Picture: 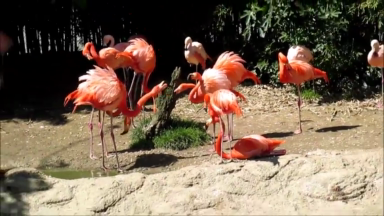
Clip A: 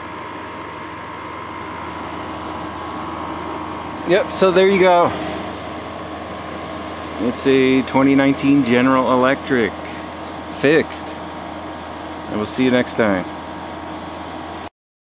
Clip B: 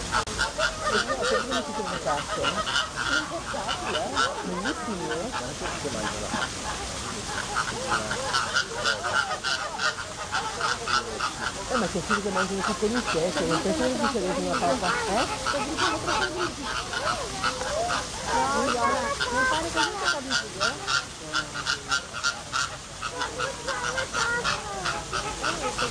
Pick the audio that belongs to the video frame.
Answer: B